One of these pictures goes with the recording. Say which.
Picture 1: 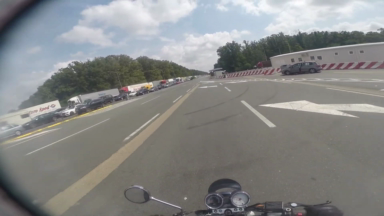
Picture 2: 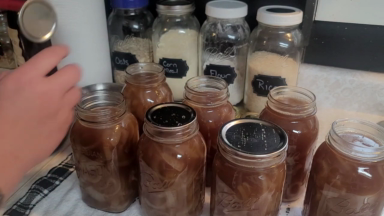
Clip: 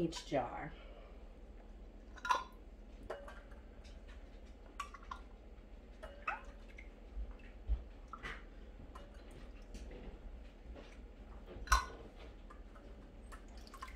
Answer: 2